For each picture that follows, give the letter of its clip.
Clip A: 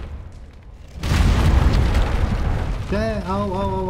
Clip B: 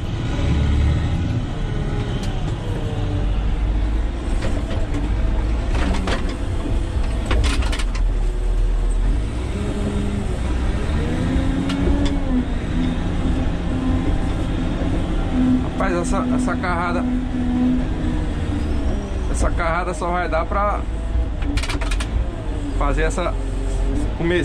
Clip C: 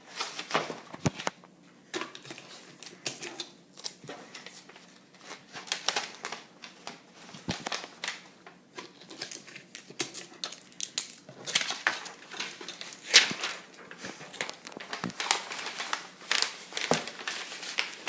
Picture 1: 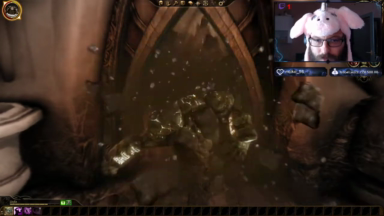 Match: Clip A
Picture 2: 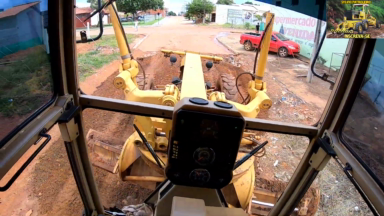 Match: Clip B